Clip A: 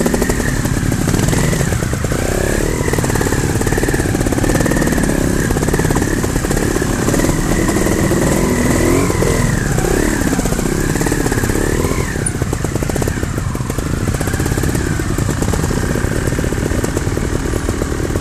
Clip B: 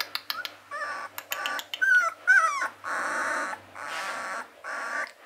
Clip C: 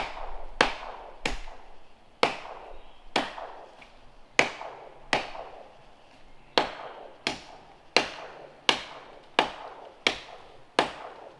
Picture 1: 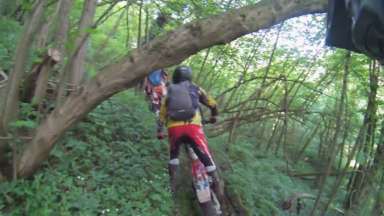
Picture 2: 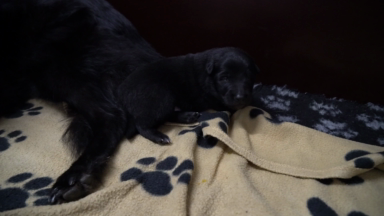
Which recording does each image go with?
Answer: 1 A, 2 B